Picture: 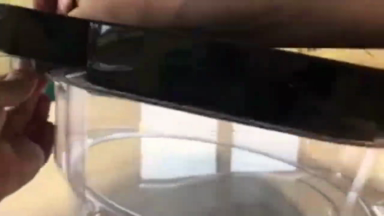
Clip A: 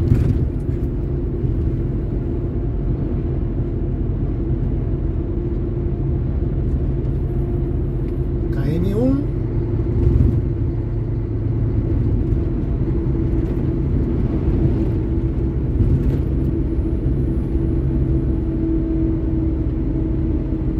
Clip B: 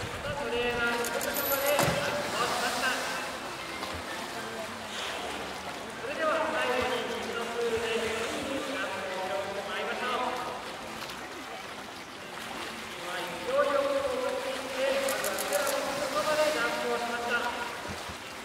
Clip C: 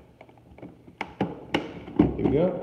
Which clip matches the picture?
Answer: C